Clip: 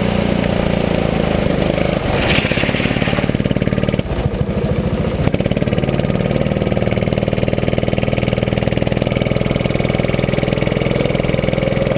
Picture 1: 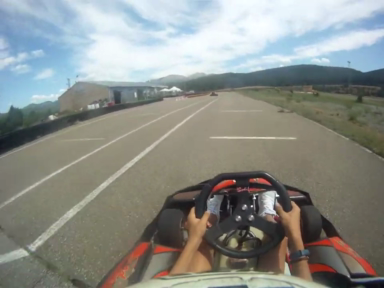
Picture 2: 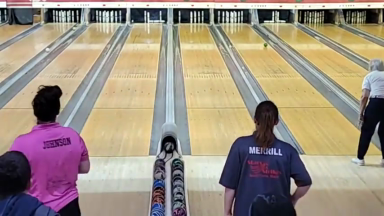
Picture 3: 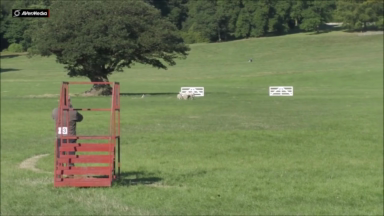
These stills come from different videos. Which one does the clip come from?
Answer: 1